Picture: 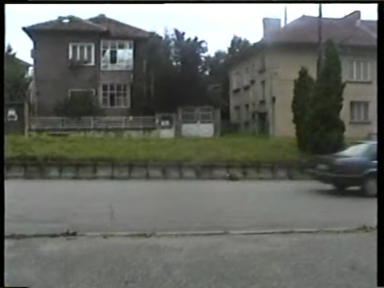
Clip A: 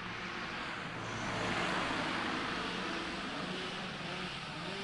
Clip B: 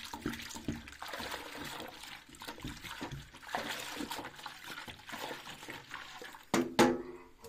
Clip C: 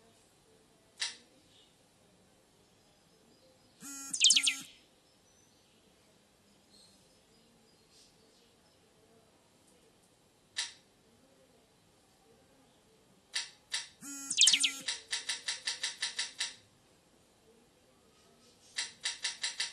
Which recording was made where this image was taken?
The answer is A